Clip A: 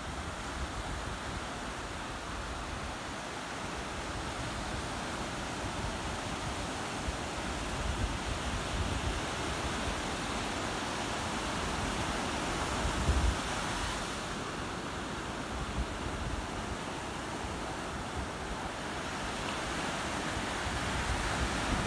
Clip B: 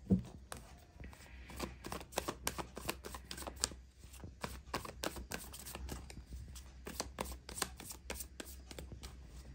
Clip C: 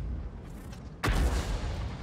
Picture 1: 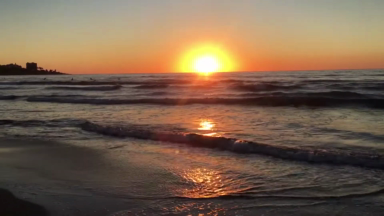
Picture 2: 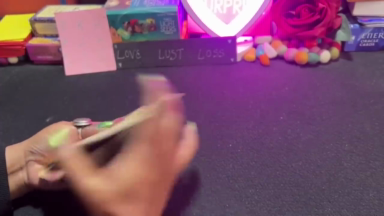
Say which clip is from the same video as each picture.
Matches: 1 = A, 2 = B